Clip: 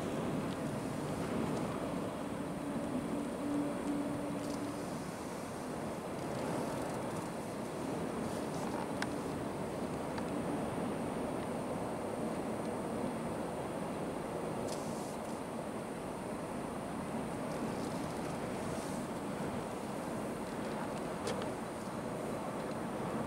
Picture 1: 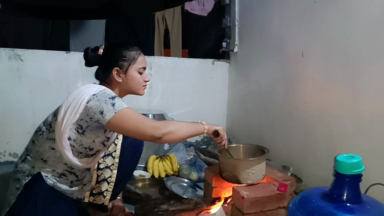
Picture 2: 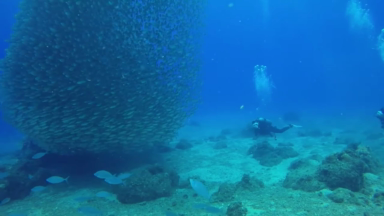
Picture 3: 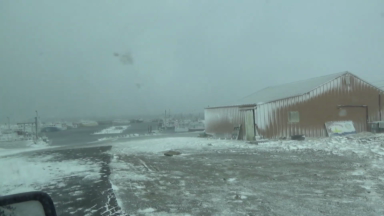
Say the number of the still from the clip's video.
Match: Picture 3